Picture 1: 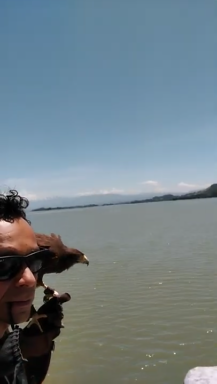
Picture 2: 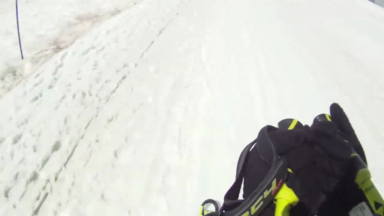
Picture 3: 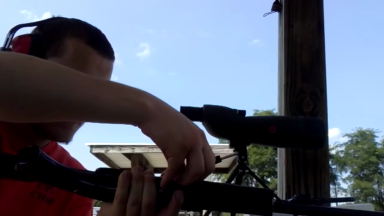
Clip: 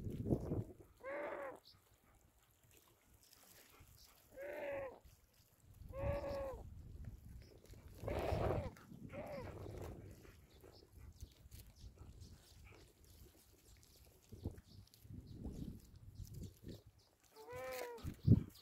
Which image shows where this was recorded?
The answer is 1